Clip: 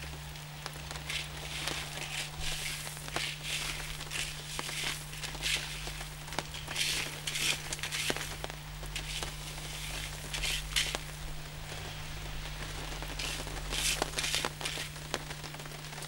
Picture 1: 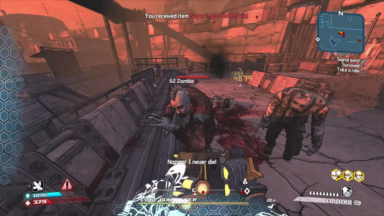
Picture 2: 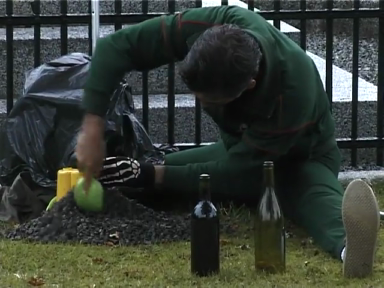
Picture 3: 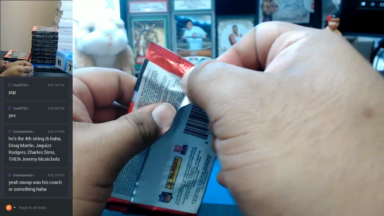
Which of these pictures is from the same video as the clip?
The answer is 2